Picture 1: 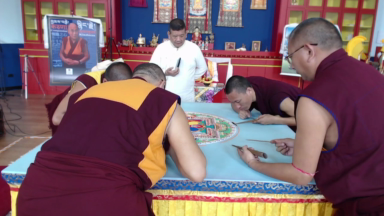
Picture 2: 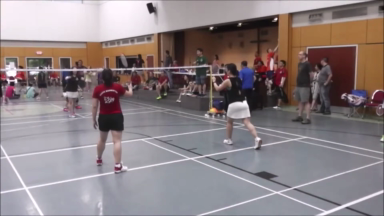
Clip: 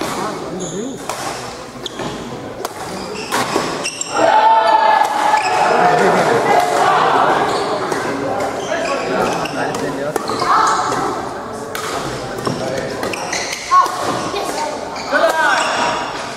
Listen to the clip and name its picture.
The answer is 2